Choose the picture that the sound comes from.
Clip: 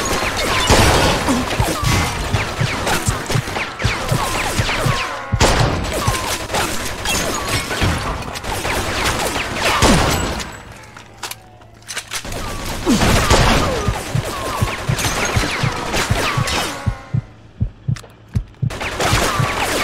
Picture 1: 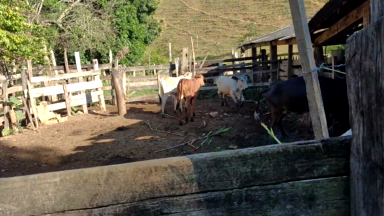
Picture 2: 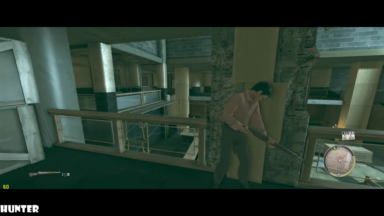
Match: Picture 2